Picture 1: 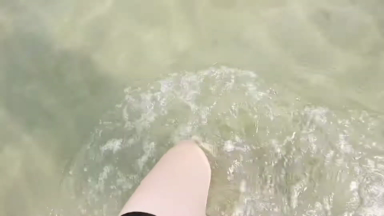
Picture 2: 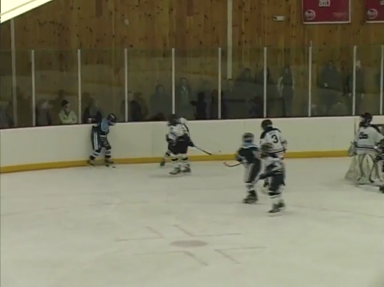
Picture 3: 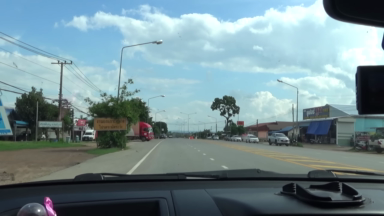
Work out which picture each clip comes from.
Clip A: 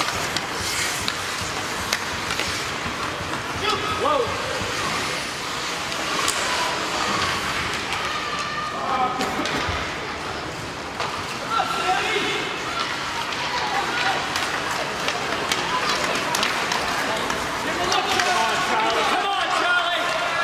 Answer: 2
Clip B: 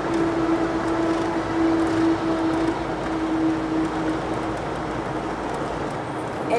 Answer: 3